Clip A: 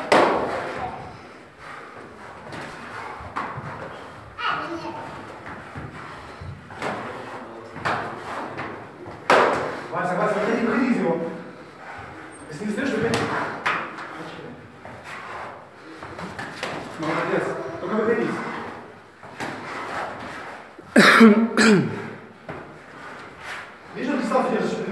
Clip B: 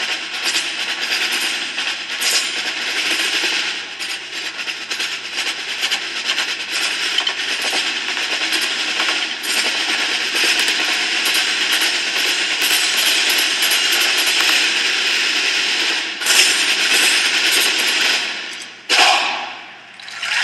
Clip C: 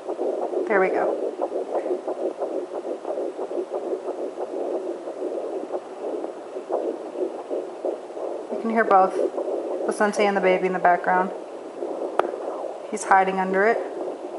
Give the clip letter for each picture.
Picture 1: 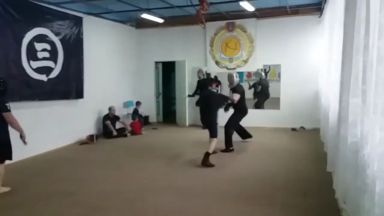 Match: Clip A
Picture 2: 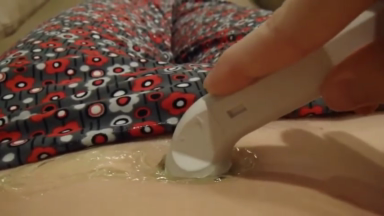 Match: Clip C